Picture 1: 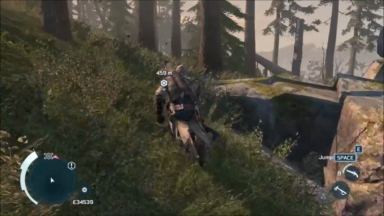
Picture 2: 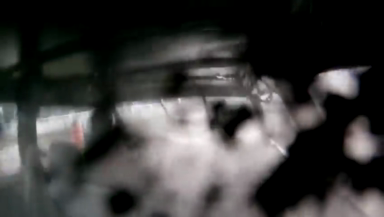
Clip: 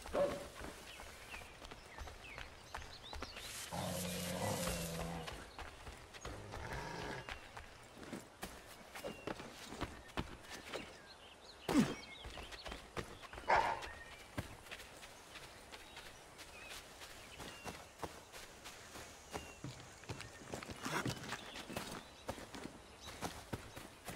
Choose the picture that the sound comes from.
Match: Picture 1